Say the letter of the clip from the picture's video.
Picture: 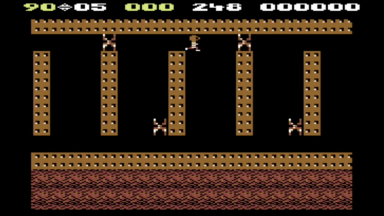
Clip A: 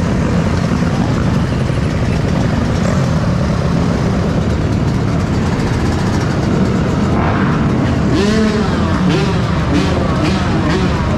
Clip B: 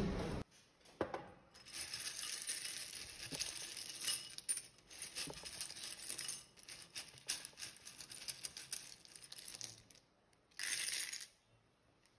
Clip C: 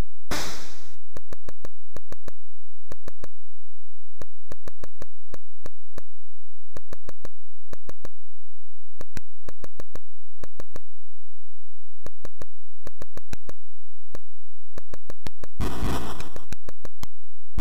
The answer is C